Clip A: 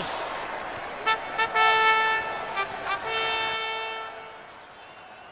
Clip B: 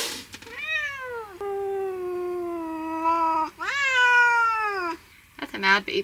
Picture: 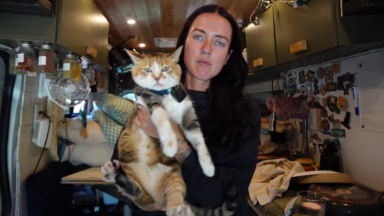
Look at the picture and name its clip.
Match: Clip B